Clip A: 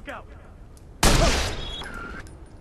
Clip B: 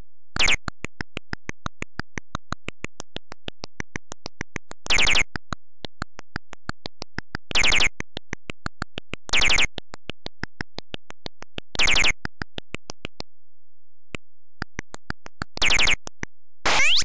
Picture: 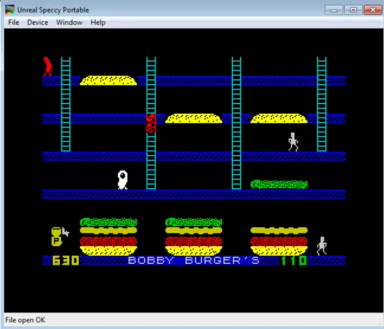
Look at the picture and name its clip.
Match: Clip B